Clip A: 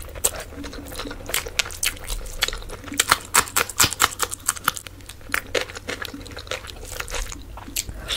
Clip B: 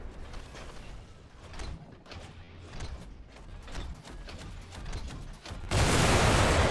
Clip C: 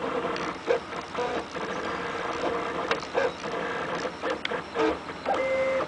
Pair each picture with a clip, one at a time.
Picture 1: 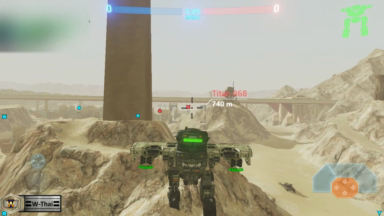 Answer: B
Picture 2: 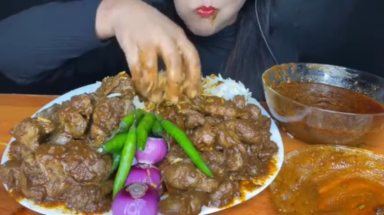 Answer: A